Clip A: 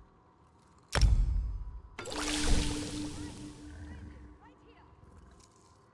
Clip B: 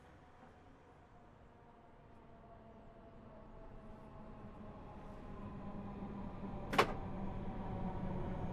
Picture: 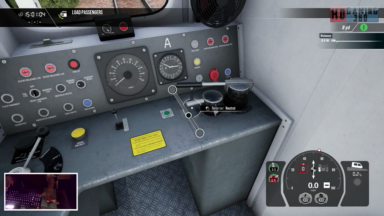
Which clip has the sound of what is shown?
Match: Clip B